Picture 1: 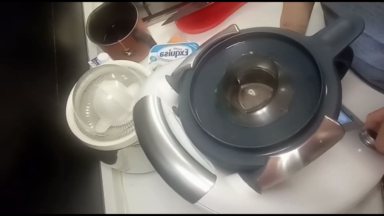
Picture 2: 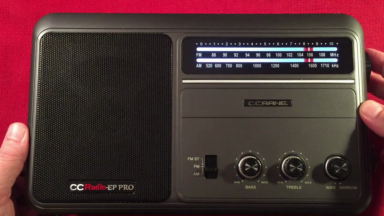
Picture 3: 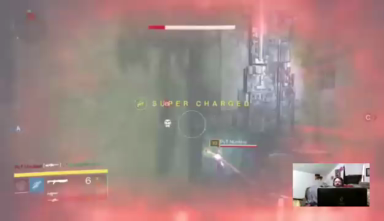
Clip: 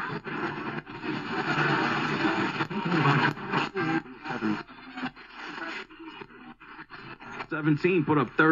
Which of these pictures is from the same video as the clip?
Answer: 2